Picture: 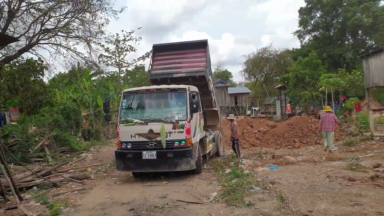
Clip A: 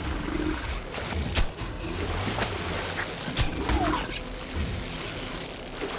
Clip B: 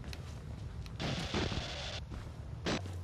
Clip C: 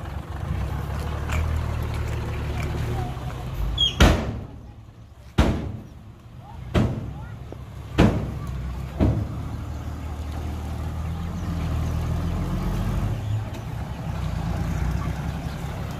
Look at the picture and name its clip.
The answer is C